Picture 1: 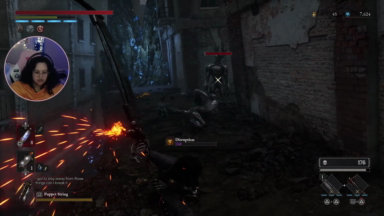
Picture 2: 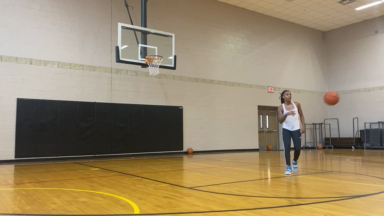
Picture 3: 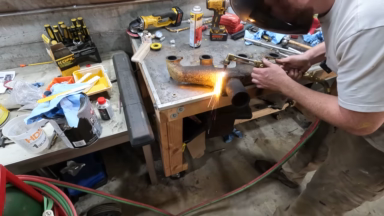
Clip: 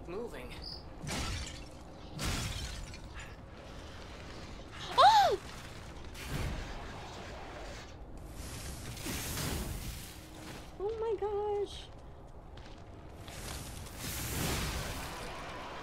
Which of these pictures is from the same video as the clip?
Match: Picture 1